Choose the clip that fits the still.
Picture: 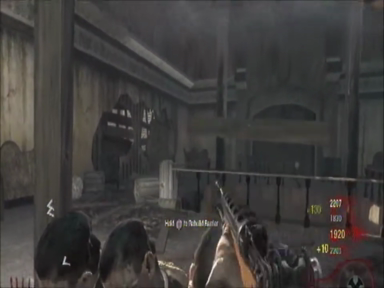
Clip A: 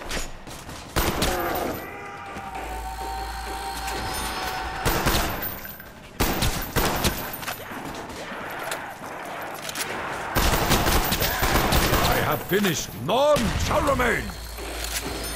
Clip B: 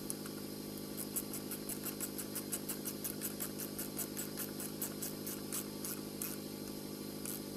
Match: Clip A